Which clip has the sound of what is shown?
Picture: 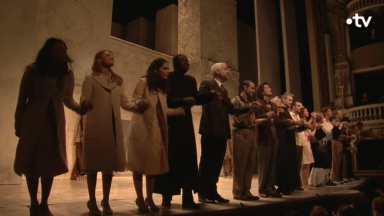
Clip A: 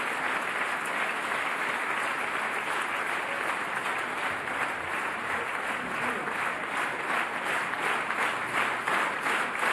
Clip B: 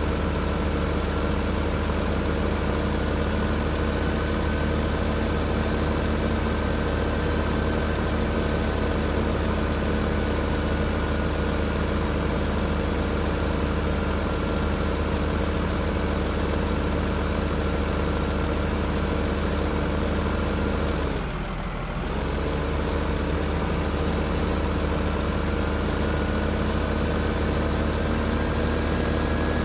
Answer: A